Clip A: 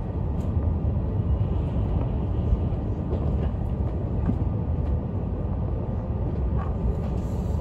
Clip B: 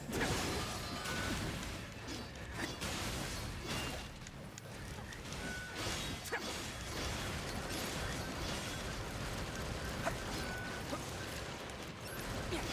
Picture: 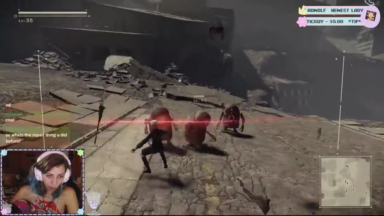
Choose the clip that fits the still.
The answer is B